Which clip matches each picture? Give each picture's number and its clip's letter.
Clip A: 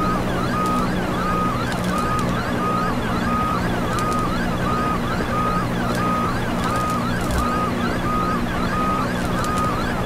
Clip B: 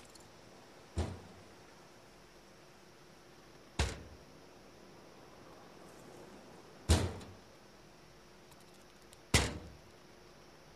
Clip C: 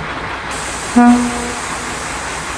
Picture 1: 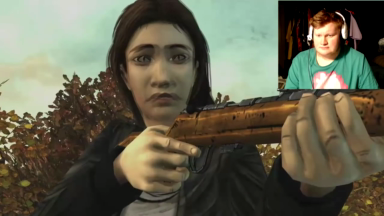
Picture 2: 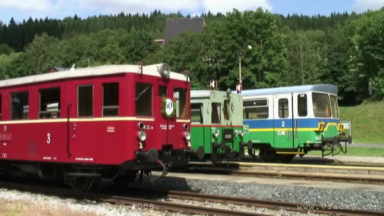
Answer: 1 B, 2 C